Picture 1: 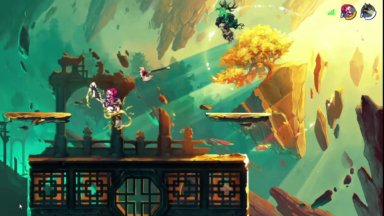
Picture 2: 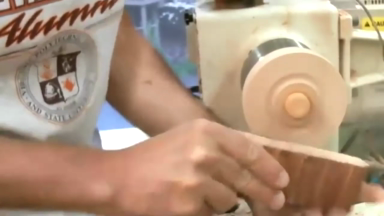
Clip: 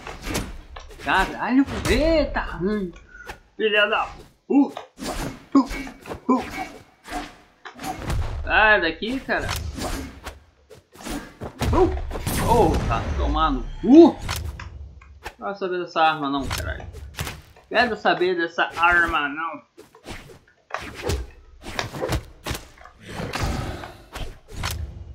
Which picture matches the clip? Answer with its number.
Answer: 1